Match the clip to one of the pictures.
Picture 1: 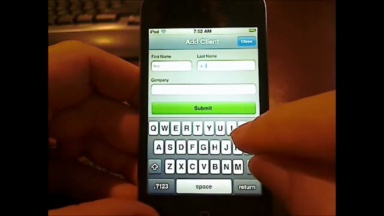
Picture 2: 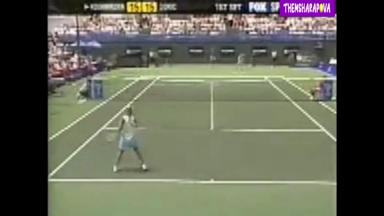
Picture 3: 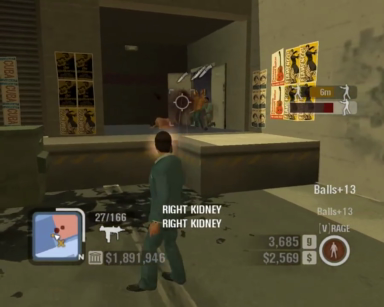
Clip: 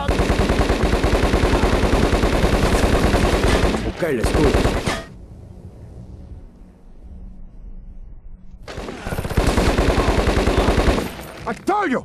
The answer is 3